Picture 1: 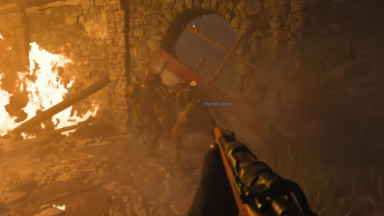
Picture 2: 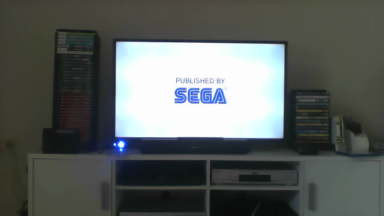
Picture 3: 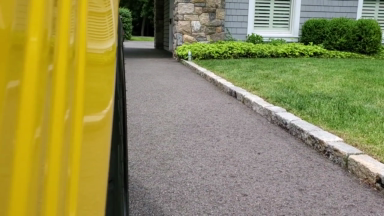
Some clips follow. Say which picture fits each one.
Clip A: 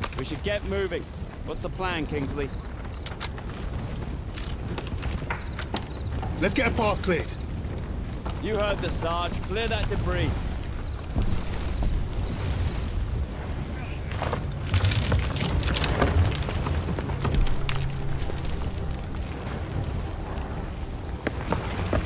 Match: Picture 1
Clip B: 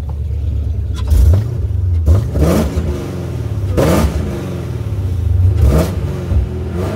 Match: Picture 3